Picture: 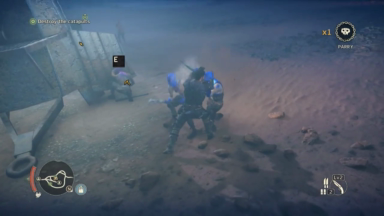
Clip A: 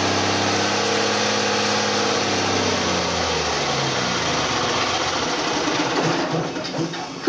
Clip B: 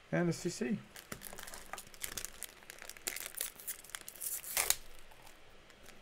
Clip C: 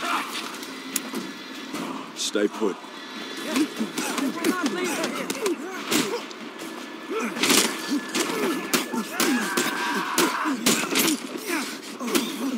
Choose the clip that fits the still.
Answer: C